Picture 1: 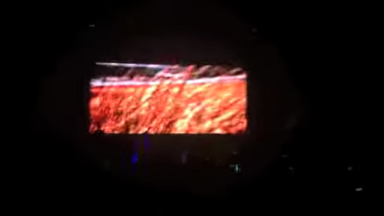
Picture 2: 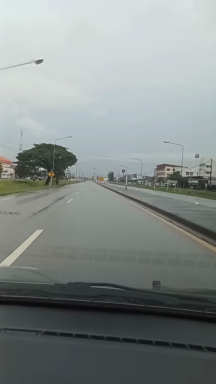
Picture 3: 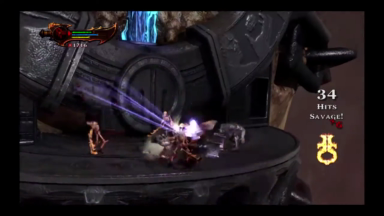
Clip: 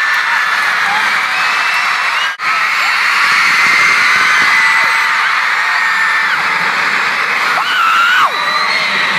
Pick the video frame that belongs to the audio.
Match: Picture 1